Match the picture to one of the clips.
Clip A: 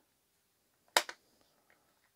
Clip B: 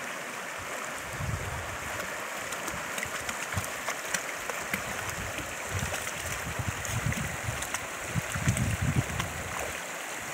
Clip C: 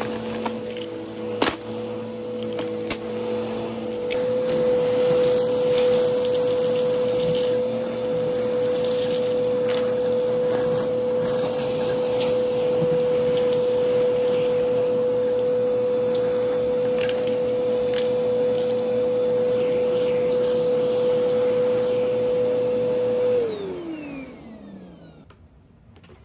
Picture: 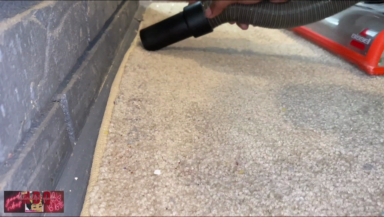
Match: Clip C